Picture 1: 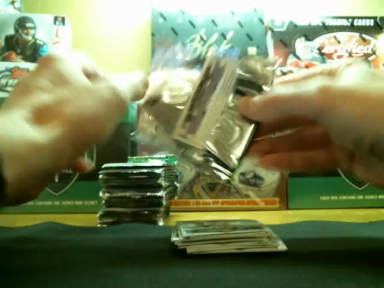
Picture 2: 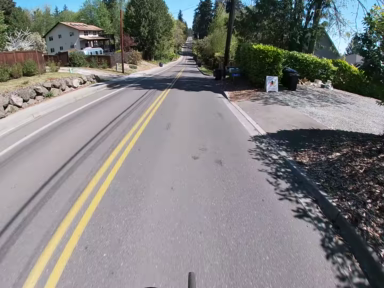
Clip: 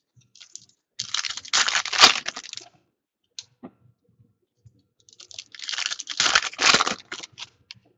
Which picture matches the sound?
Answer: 1